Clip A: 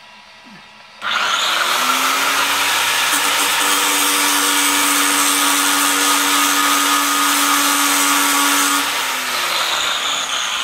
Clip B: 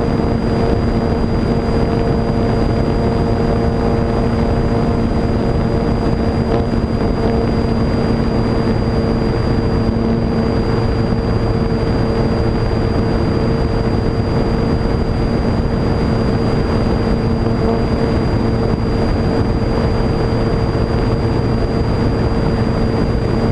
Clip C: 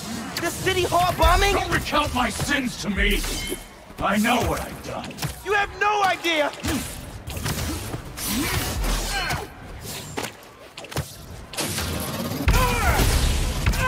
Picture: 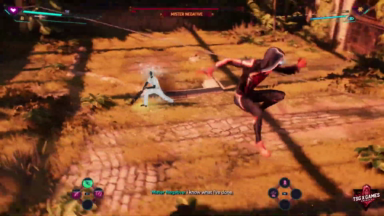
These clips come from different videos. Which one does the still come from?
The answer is C